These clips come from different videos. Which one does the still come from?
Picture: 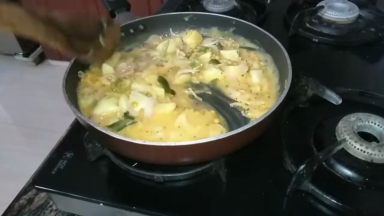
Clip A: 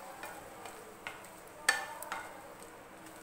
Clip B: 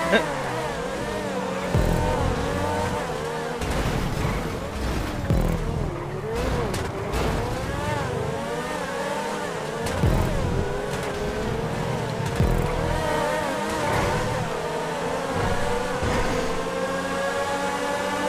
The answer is A